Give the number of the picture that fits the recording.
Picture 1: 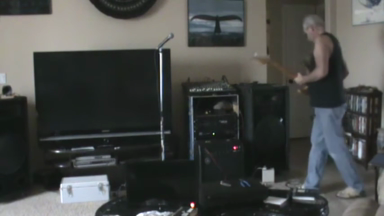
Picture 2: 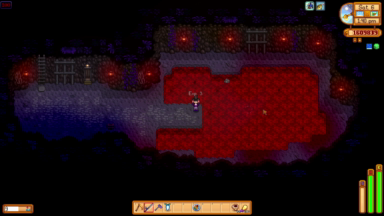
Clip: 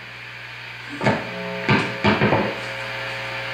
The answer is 1